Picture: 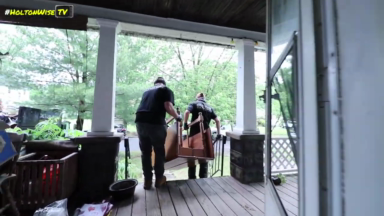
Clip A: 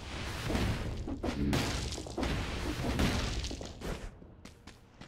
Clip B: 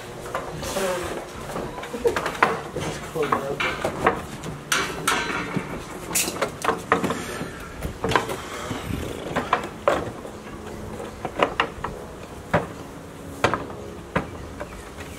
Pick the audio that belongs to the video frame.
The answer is B